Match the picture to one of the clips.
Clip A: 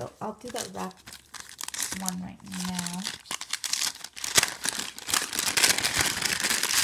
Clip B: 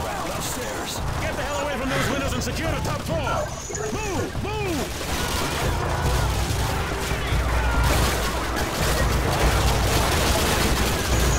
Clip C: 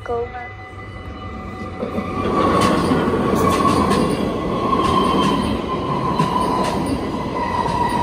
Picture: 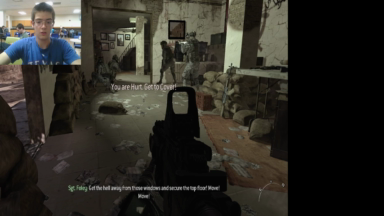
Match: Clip B